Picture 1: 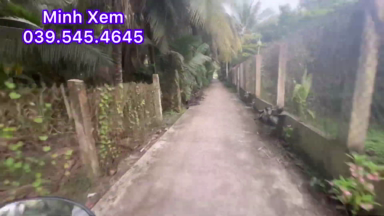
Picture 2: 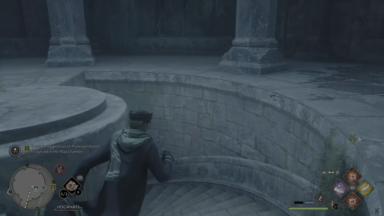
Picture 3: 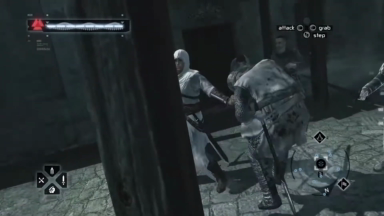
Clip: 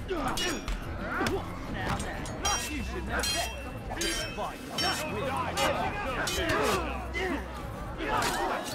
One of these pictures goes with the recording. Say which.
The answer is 3